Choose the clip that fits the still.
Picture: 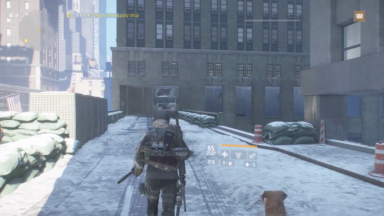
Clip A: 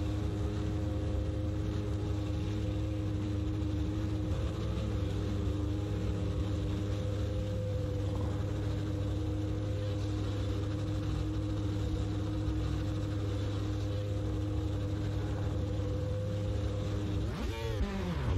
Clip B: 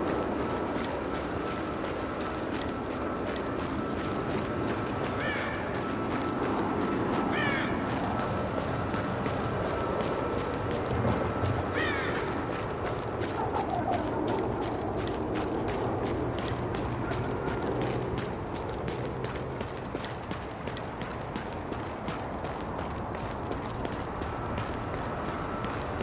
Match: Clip B